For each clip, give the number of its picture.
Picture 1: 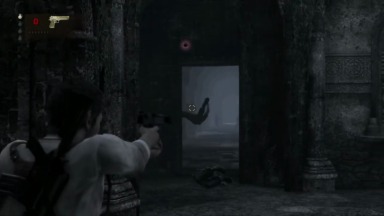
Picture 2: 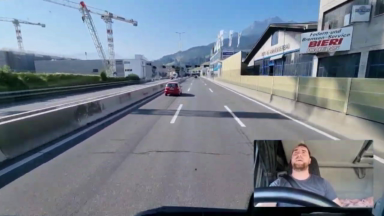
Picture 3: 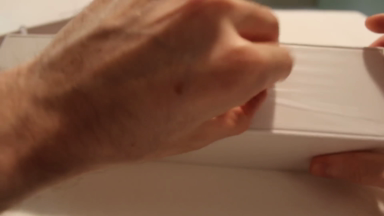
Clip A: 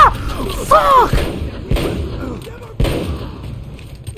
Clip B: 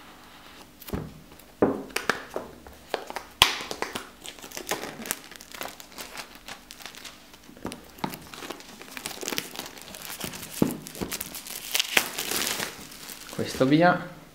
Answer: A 1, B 3